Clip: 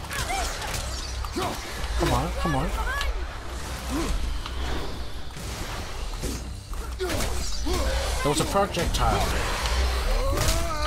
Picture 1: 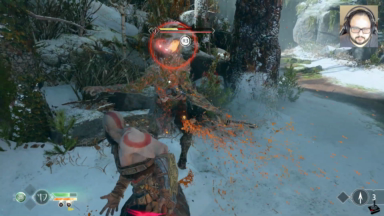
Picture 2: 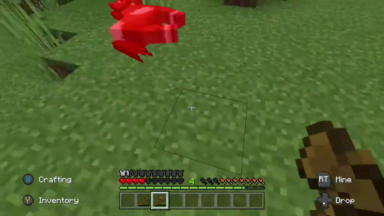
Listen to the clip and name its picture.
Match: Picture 1